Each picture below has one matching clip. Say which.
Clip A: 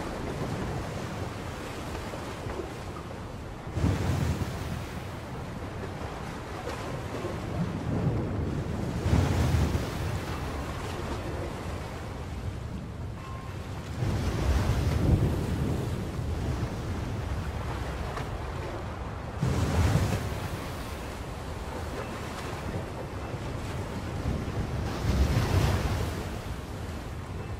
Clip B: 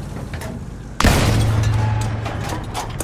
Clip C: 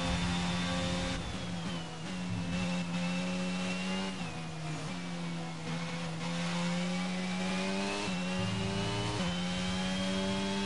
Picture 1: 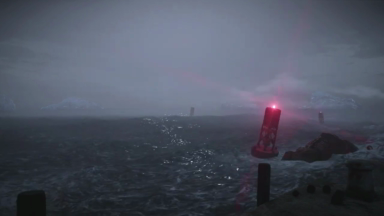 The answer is A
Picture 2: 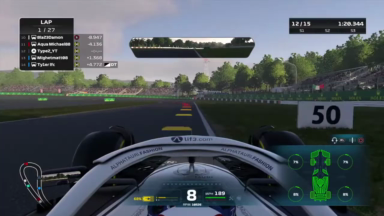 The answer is C